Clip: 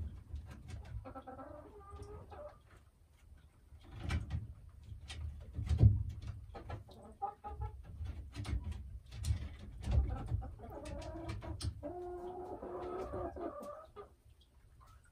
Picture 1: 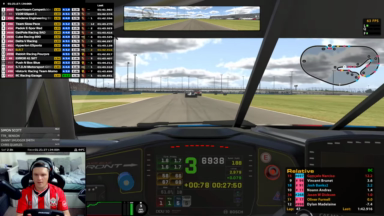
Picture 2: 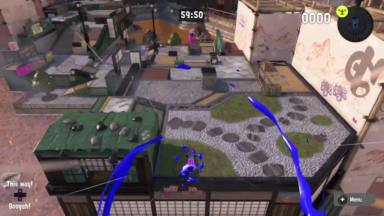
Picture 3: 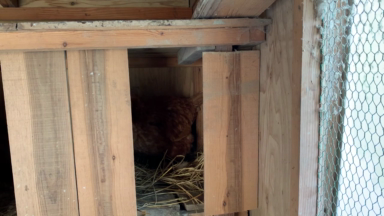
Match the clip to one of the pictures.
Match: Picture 3